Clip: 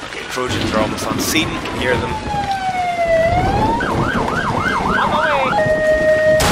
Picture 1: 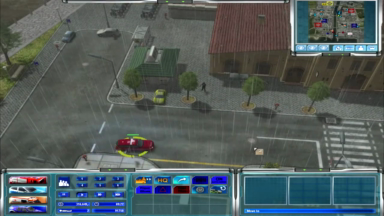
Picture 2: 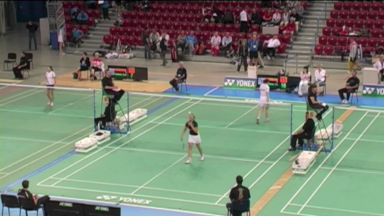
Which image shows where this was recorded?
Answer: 1